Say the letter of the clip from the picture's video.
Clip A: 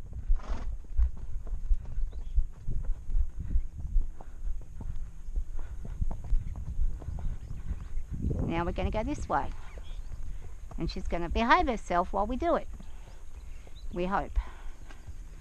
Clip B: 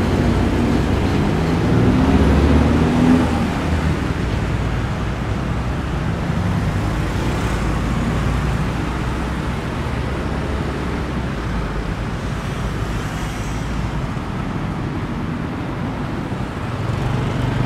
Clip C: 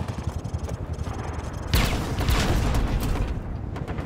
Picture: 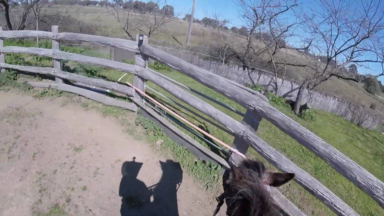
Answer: A